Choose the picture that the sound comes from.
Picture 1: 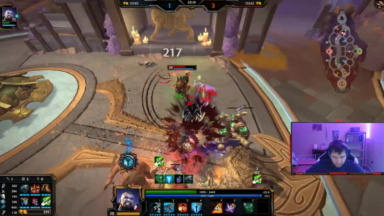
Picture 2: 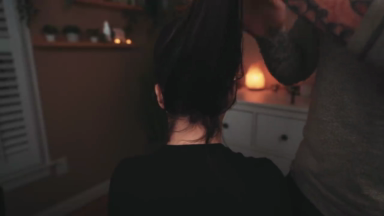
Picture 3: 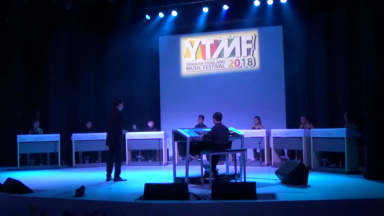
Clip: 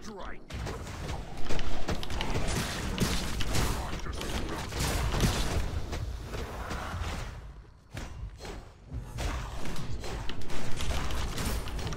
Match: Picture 1